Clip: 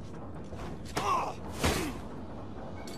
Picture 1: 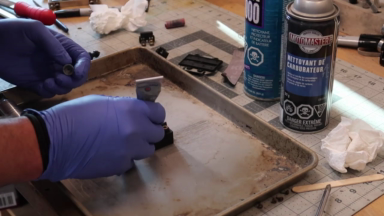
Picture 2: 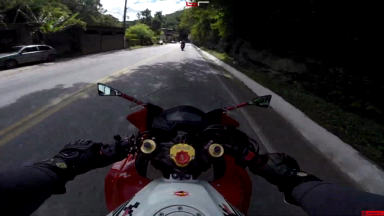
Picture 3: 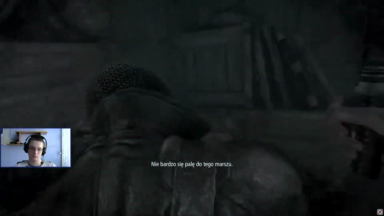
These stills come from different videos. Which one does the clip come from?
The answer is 3